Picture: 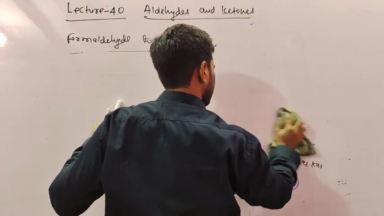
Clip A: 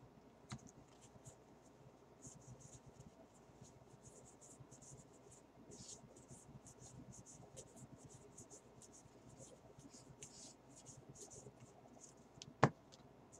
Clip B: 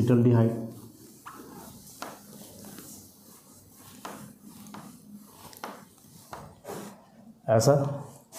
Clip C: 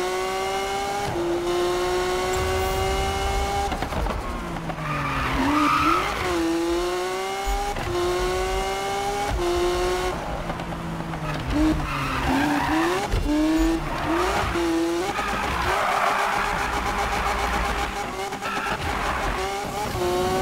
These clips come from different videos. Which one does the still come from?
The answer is B